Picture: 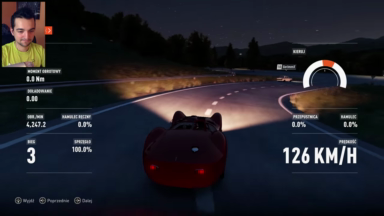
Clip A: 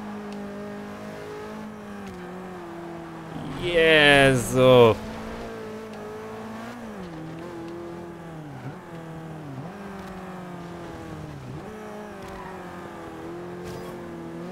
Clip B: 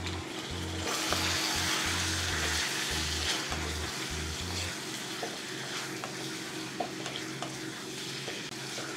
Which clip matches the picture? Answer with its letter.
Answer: A